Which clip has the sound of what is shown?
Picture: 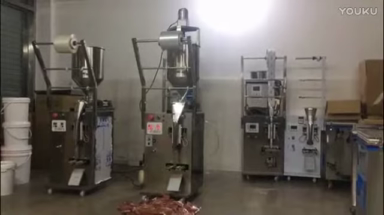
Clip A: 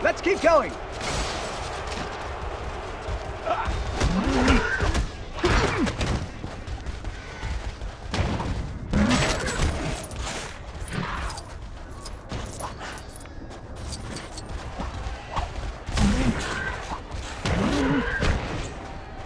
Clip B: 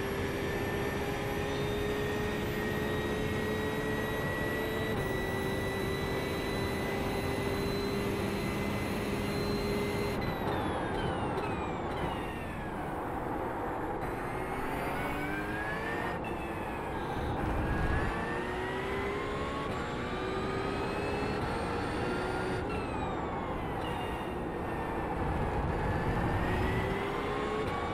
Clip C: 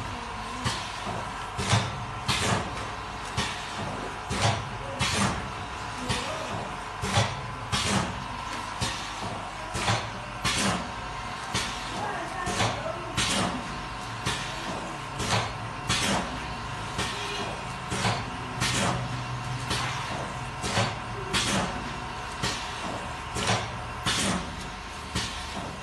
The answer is C